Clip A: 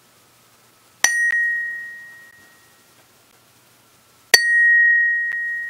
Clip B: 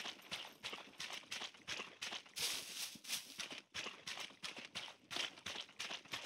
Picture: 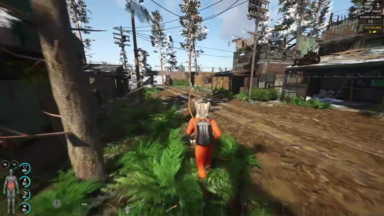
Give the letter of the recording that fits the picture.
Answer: B